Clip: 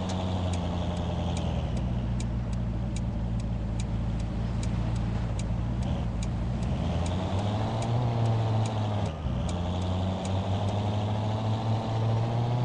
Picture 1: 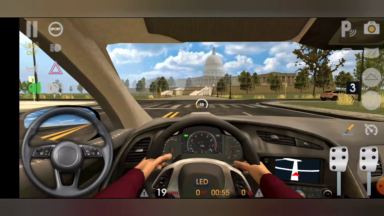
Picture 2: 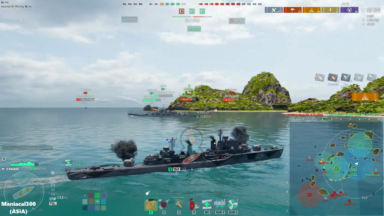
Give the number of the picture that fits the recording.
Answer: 1